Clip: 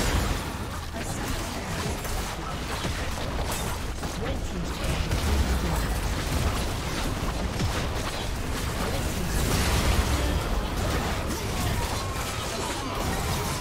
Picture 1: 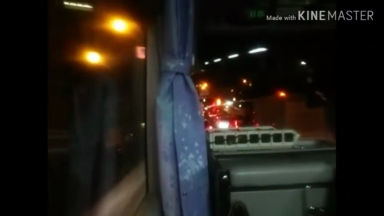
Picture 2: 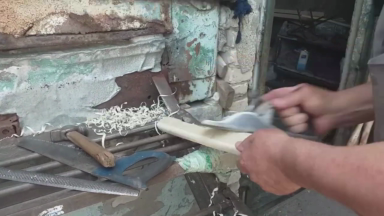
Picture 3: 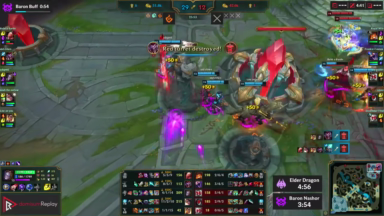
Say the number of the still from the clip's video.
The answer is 3